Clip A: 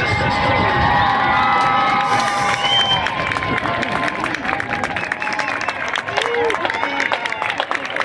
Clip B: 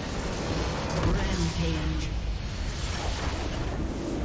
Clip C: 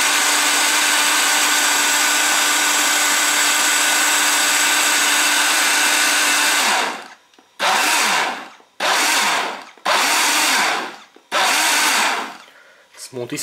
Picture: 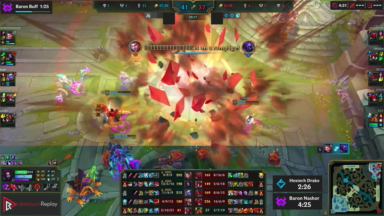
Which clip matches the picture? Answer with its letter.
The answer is B